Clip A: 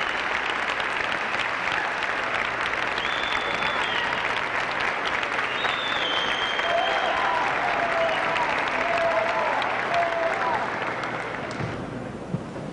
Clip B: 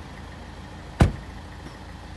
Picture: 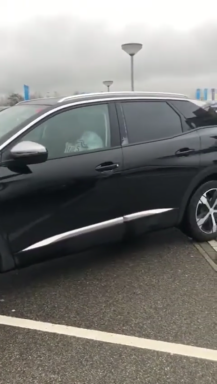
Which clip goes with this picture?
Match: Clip B